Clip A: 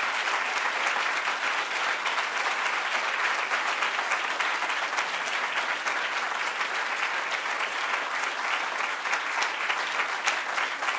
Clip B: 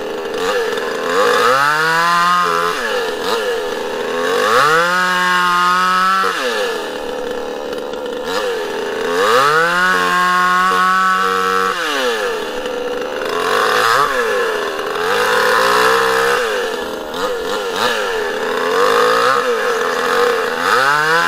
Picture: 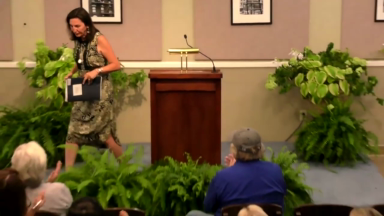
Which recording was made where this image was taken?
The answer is A